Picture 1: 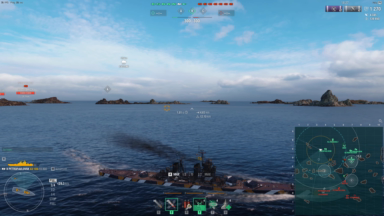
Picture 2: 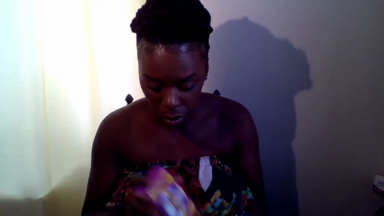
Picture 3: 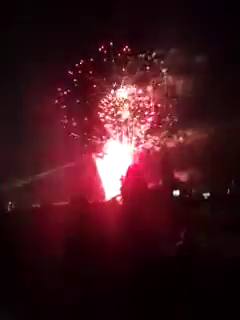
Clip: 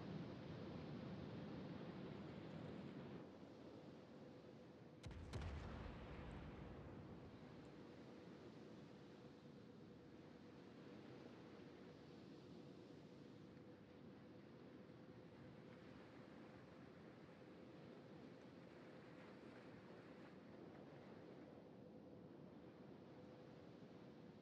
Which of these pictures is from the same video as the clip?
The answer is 1